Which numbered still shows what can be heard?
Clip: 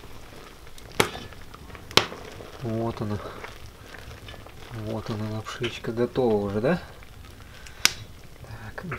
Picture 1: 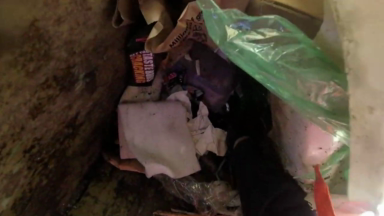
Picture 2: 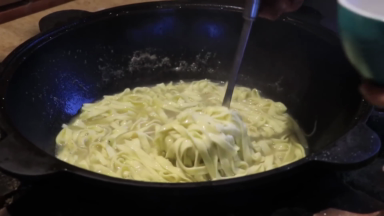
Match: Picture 2